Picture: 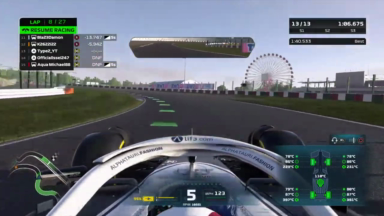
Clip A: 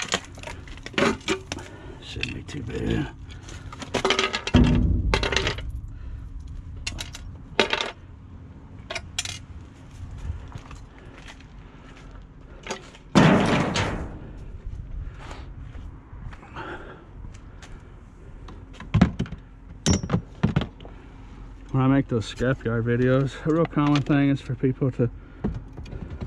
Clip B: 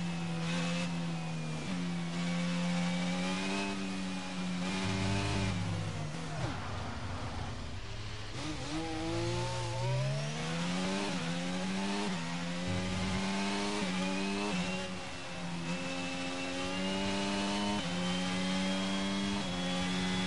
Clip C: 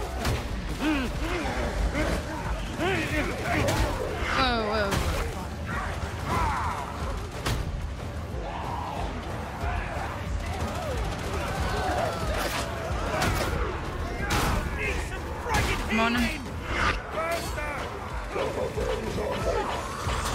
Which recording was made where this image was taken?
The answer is B